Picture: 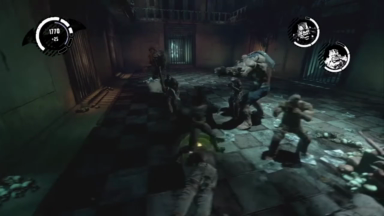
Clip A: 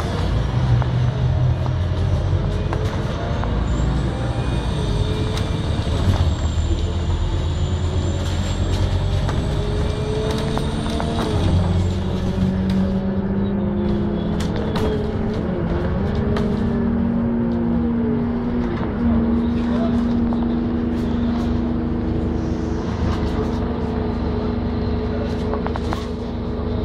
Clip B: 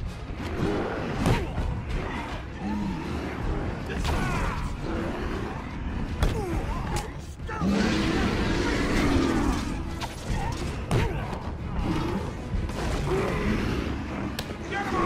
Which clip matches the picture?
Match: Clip B